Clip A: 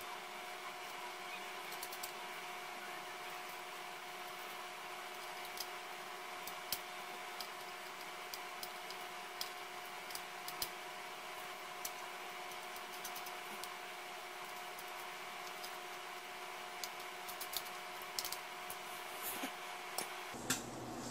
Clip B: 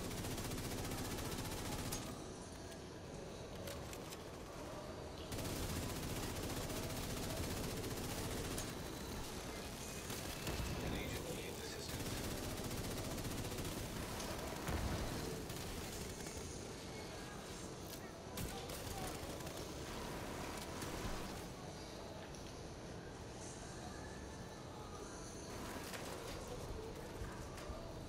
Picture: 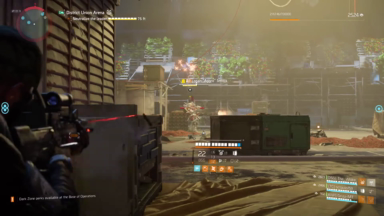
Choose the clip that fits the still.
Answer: B